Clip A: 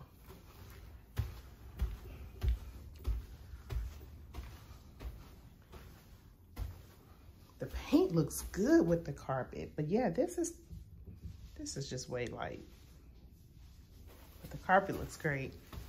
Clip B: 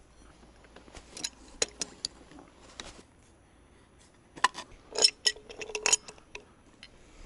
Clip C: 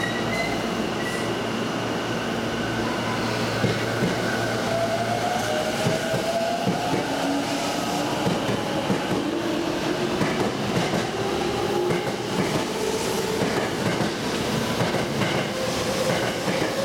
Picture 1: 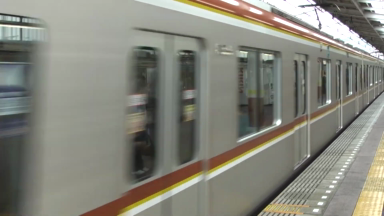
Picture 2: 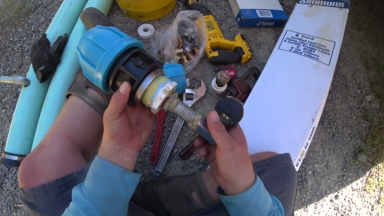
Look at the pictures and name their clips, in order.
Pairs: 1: C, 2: B